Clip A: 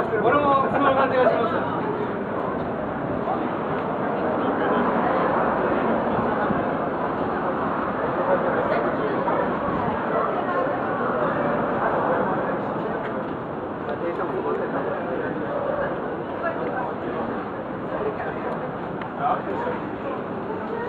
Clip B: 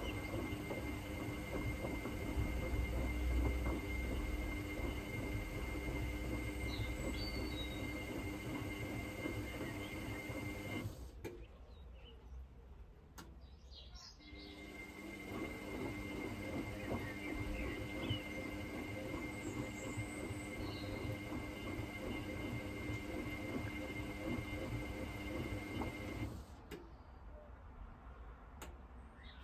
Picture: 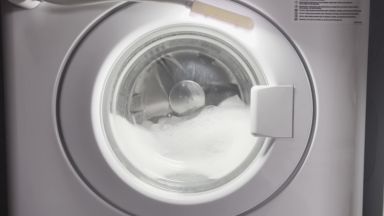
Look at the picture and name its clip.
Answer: B